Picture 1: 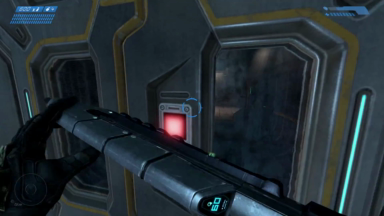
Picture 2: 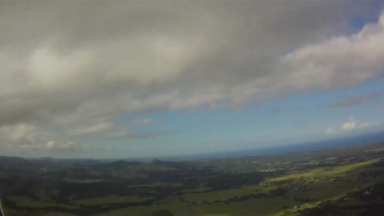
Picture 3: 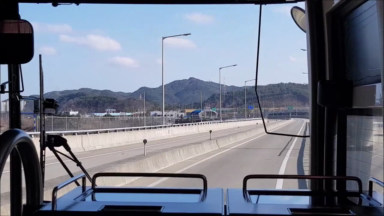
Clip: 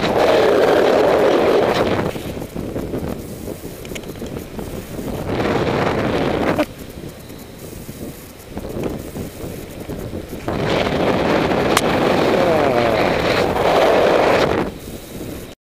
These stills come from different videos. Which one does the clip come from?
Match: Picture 2